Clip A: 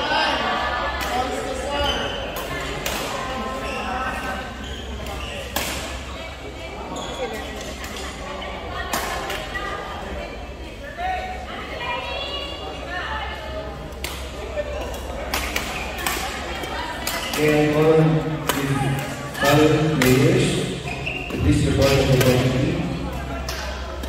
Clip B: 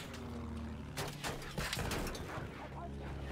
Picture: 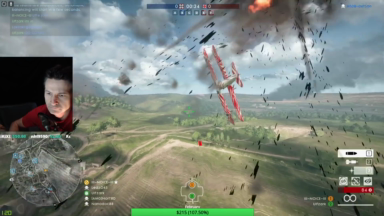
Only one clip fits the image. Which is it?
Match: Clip B